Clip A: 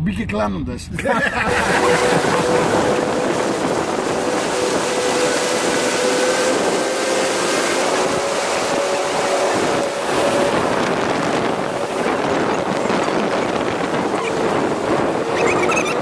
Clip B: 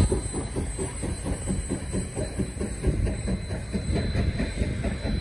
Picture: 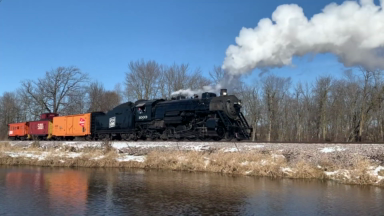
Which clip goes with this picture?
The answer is B